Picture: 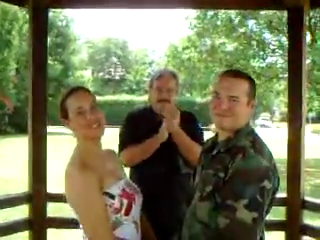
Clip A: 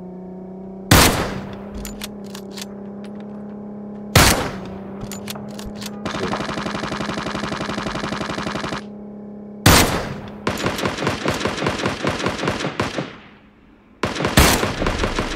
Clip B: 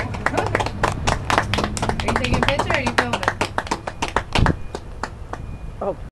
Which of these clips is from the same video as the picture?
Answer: B